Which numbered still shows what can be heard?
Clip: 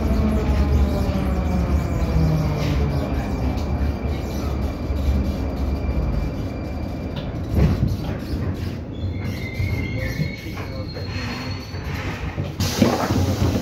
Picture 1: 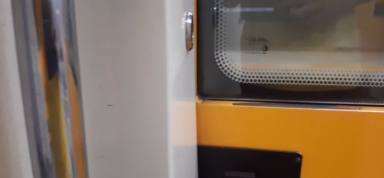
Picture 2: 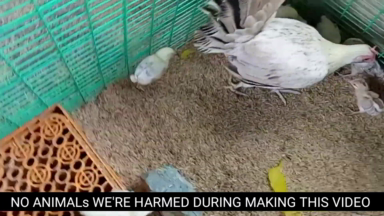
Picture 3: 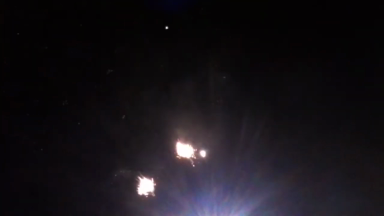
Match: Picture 1